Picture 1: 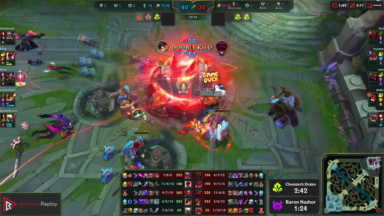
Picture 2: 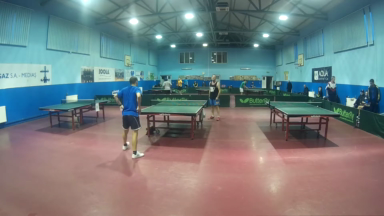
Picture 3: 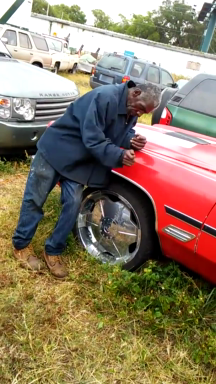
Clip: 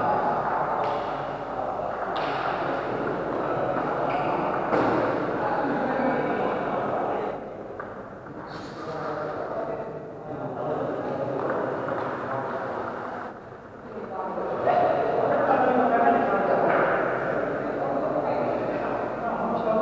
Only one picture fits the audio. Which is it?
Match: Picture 2